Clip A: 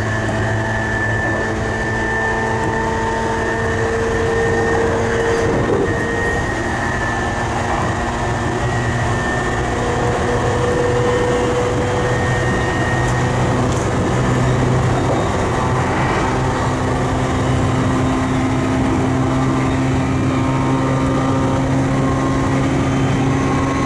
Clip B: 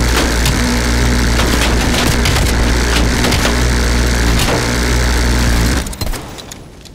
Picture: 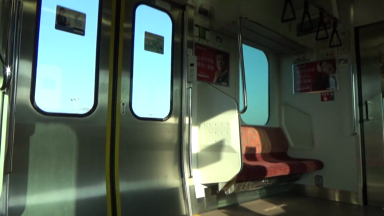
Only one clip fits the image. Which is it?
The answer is A